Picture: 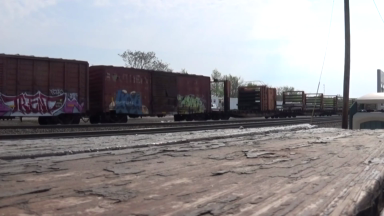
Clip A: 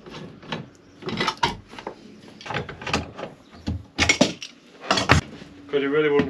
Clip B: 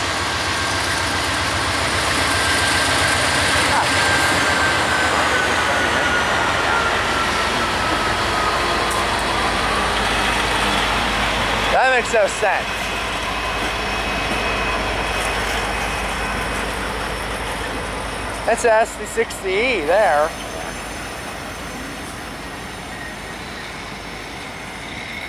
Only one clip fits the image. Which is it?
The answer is B